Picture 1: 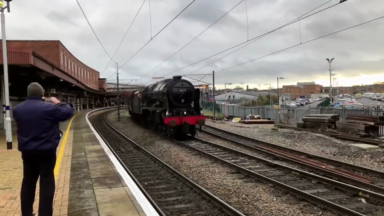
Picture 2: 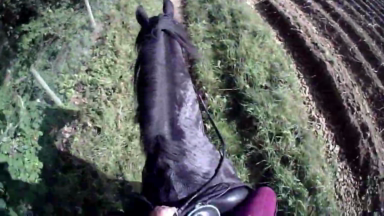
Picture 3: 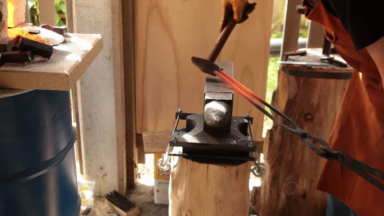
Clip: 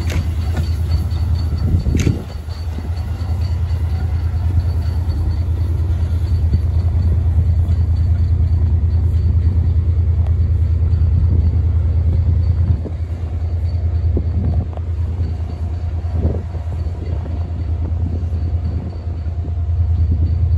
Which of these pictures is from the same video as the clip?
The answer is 1